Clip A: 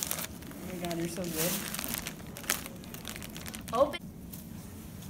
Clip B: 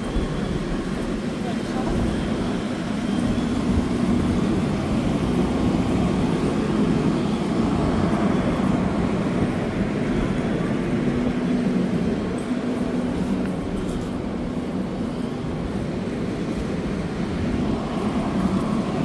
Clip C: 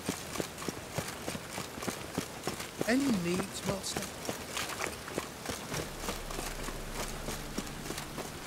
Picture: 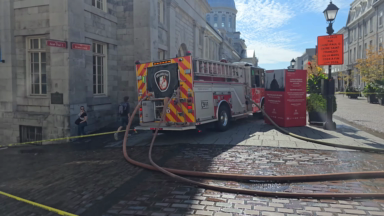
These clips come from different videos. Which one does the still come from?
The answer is B